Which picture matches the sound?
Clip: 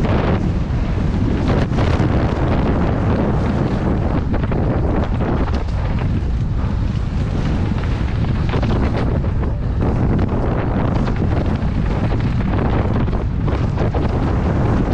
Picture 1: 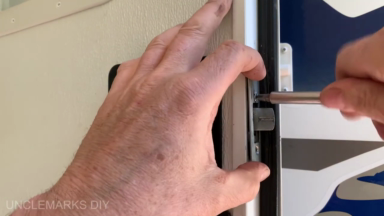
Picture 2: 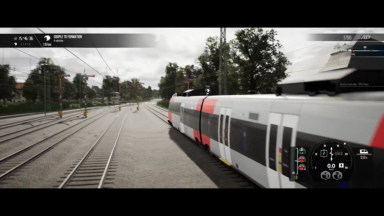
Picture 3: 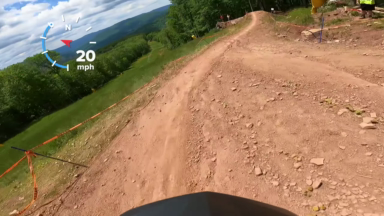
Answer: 3